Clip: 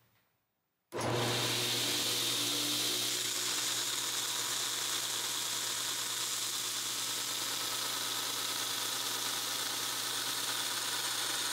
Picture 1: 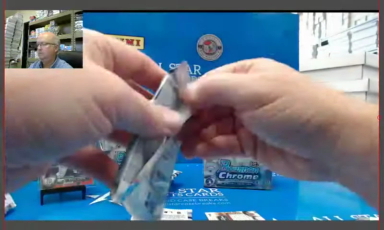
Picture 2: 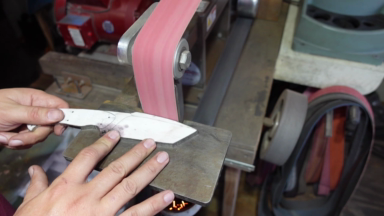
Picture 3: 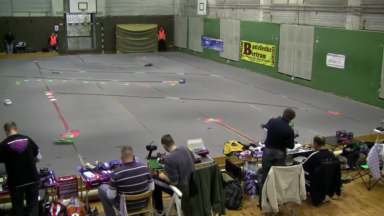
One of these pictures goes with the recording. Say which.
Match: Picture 2